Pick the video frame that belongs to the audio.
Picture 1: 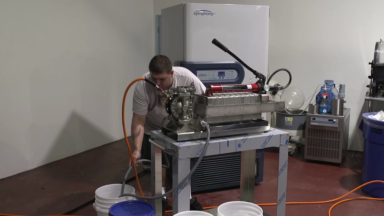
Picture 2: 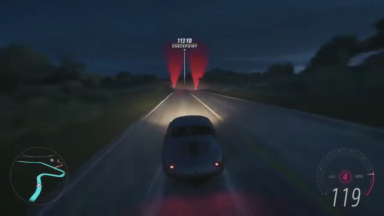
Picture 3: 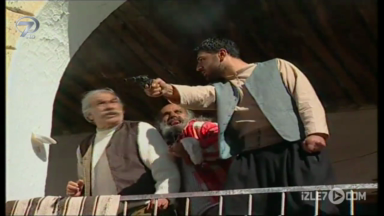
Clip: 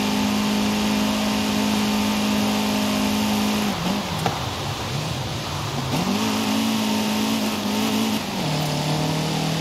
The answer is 2